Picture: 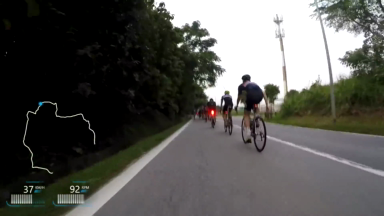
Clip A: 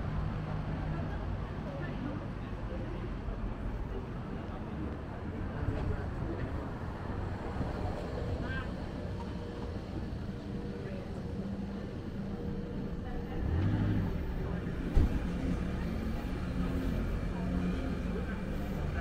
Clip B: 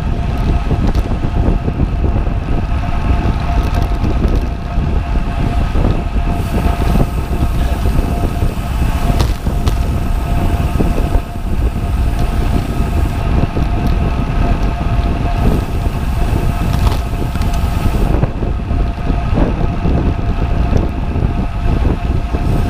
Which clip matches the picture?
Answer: B